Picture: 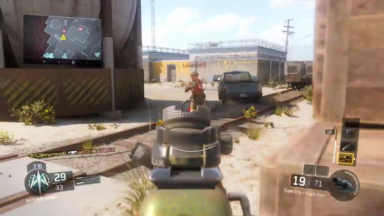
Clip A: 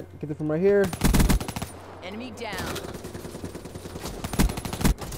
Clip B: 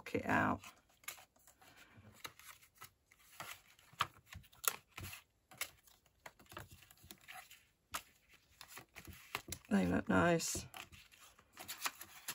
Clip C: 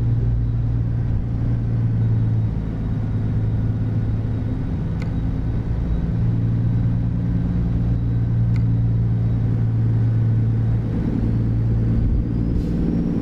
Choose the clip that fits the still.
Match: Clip A